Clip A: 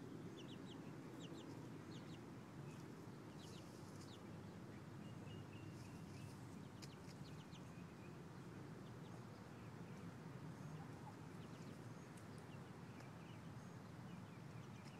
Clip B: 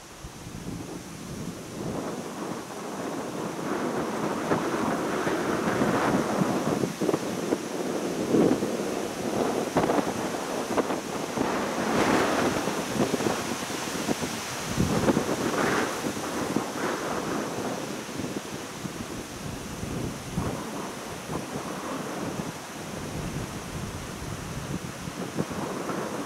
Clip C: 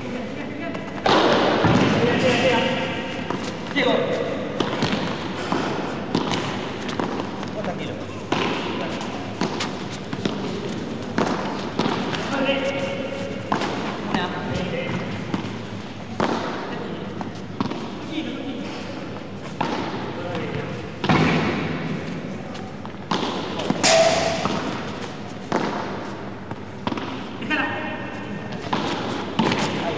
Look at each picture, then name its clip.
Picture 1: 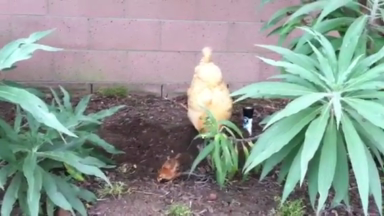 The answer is A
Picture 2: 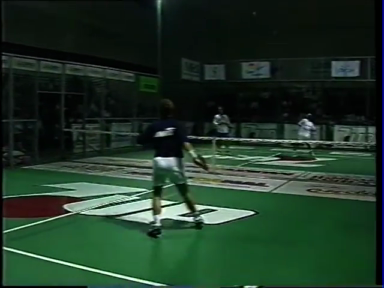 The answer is C